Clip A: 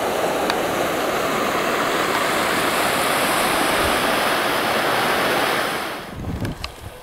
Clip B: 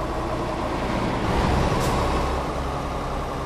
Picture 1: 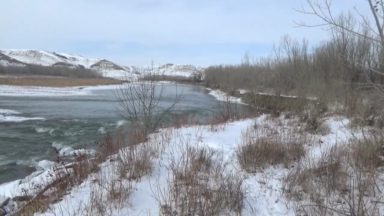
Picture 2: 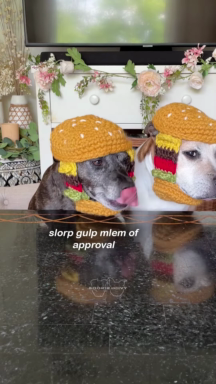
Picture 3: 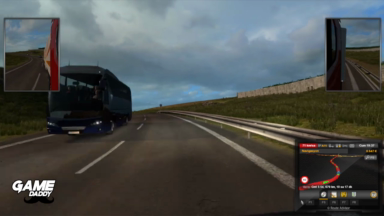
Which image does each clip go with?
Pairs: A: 1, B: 3